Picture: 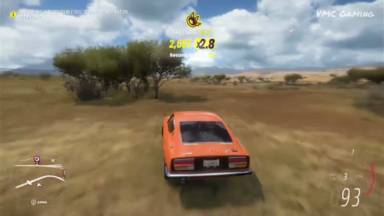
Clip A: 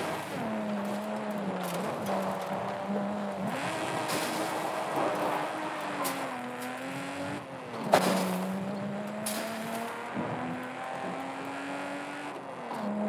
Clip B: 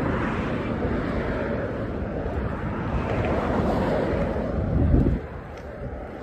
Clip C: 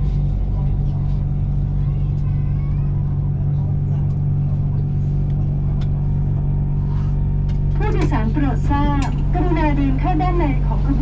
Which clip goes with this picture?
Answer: A